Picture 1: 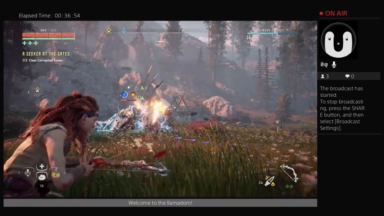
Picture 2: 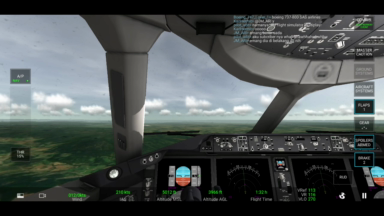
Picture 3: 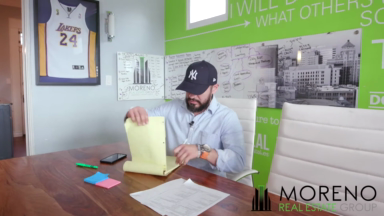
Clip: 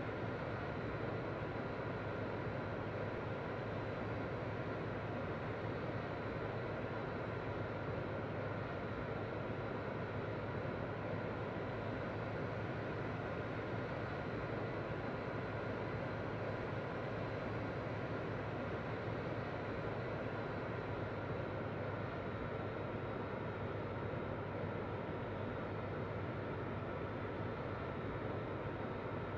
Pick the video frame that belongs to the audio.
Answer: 2